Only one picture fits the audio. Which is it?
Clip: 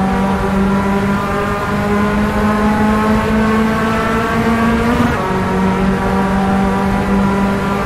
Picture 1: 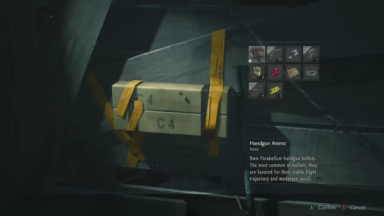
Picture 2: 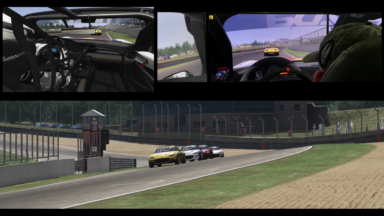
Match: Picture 2